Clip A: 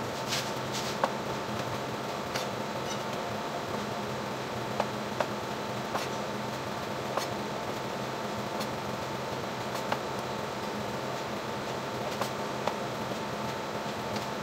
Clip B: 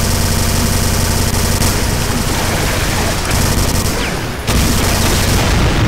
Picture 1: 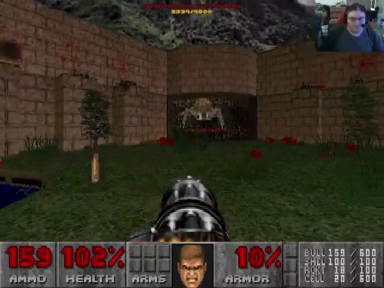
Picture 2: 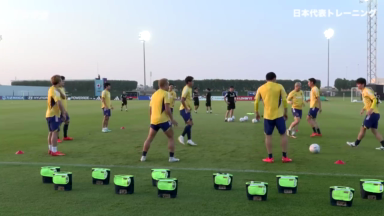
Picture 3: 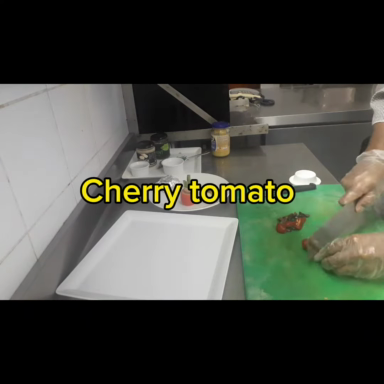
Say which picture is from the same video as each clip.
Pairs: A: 3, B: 1